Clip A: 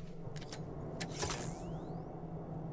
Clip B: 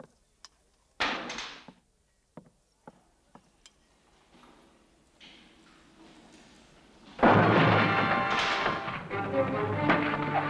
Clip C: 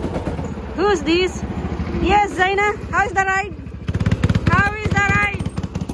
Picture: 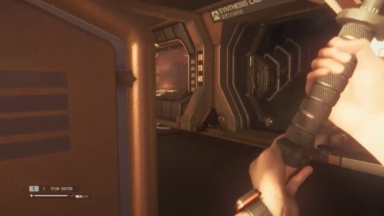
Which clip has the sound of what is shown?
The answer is A